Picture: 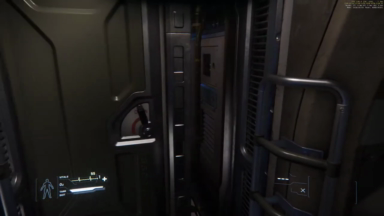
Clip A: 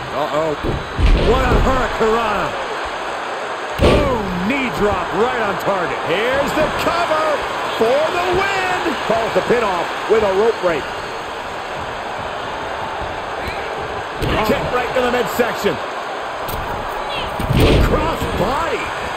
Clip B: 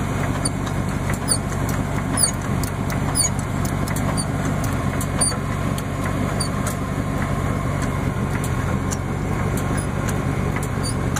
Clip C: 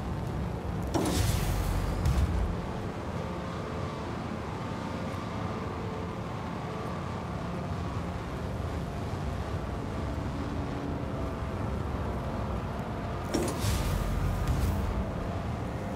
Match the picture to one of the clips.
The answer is C